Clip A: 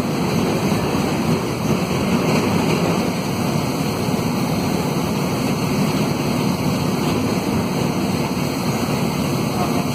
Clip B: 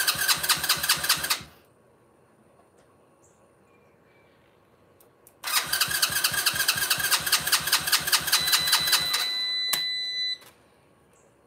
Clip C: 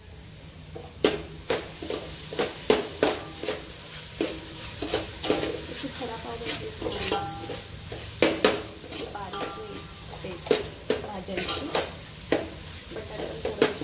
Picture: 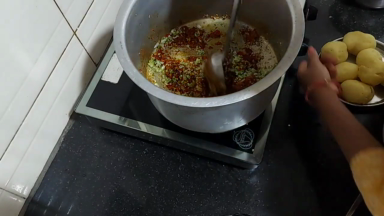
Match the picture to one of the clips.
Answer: C